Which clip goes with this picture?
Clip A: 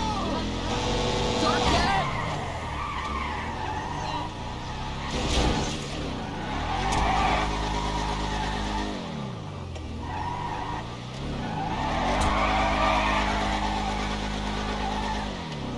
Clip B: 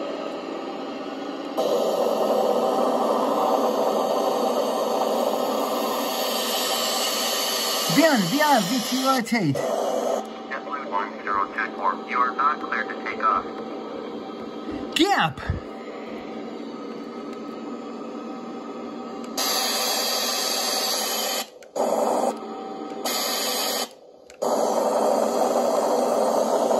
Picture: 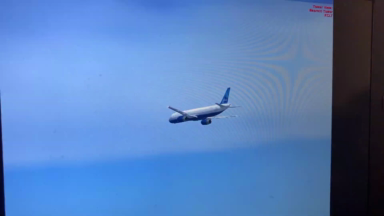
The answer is B